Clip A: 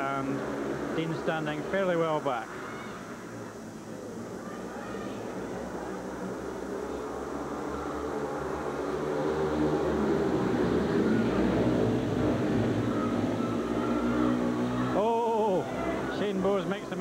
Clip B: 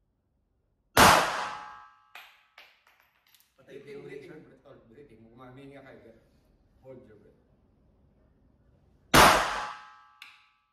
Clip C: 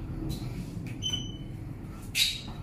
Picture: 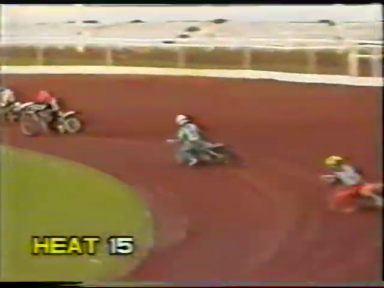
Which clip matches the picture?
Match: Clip A